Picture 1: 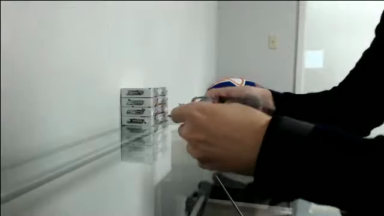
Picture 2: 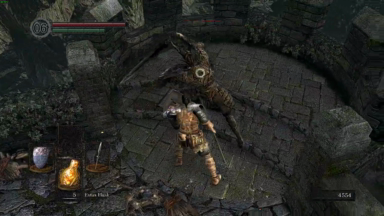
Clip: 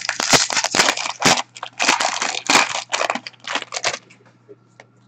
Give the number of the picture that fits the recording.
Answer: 1